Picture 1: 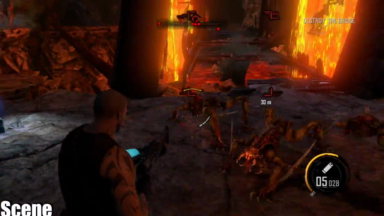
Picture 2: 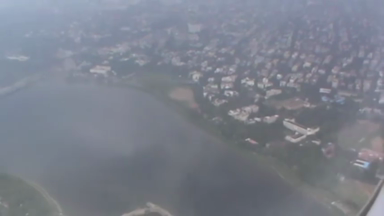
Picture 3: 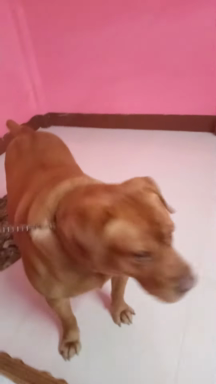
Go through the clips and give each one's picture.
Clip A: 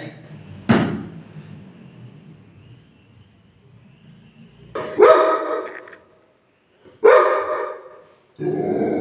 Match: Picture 3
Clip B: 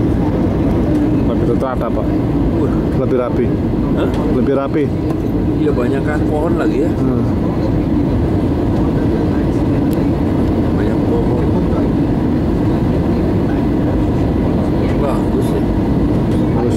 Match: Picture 2